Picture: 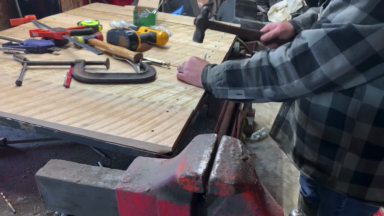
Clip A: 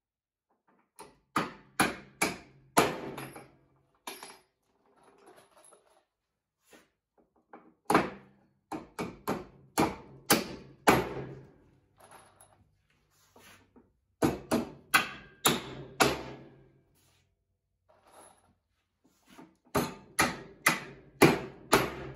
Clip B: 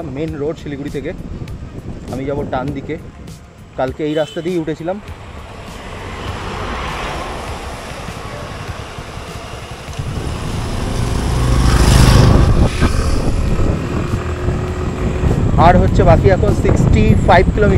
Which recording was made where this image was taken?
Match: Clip A